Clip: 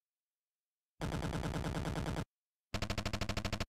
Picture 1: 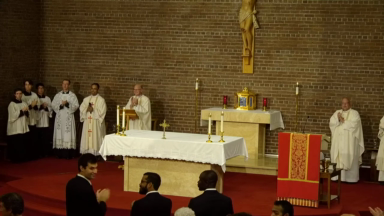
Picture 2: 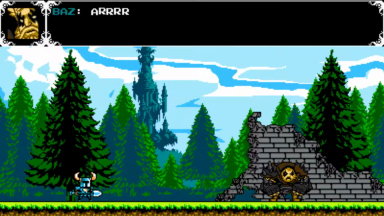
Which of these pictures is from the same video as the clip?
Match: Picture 2